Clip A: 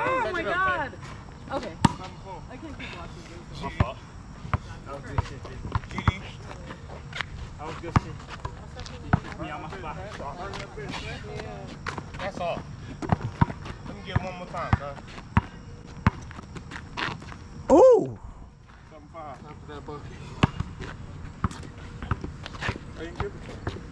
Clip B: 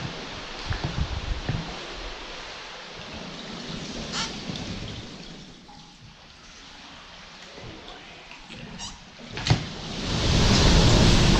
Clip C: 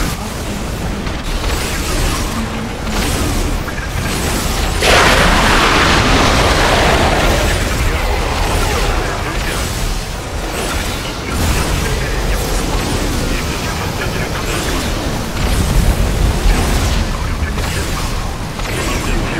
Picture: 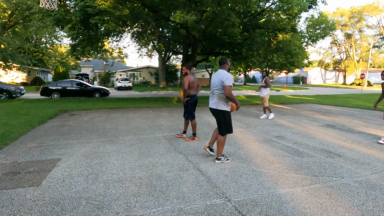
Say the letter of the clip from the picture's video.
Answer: A